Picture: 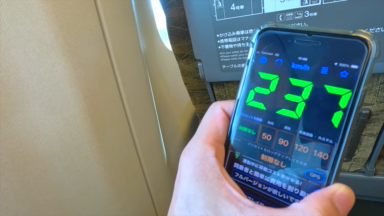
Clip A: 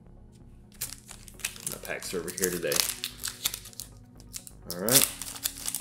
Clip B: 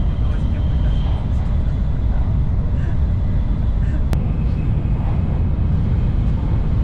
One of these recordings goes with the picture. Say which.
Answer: B